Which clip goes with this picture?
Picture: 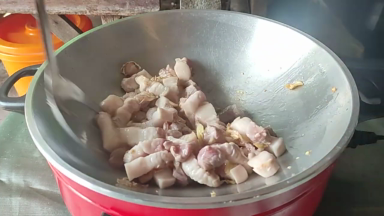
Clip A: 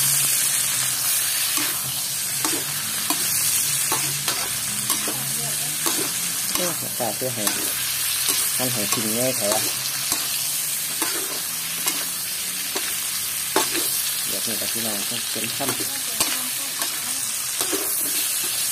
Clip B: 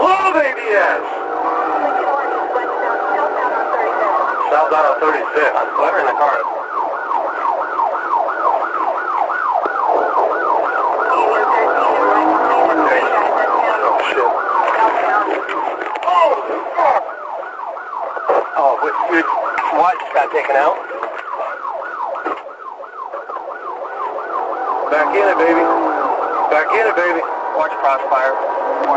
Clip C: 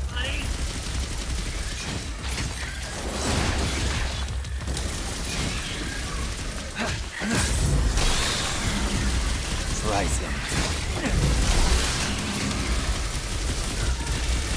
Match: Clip A